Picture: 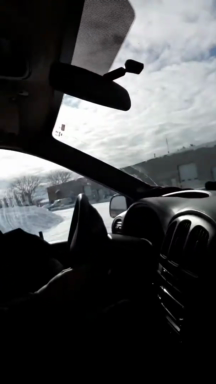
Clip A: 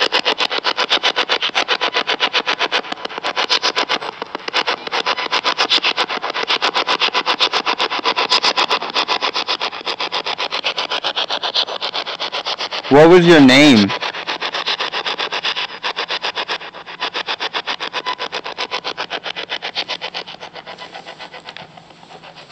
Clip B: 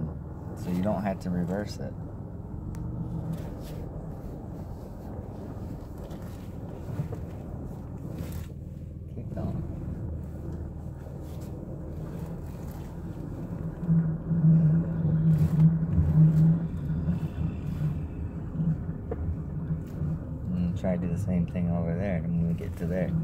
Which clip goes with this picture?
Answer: B